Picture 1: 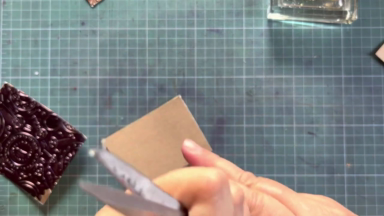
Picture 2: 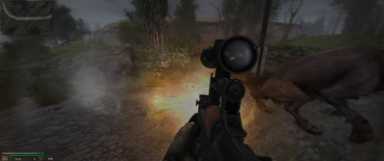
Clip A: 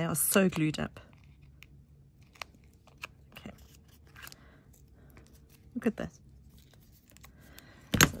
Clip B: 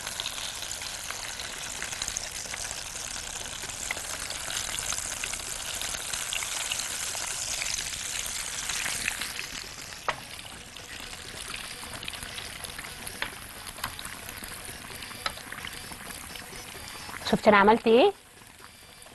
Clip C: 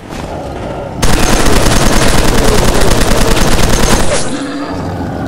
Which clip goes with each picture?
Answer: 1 A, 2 C